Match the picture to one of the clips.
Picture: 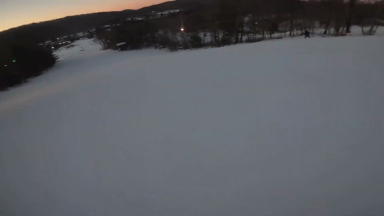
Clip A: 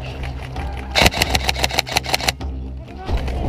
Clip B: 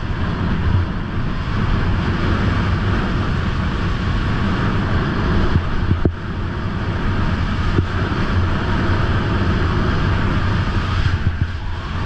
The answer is B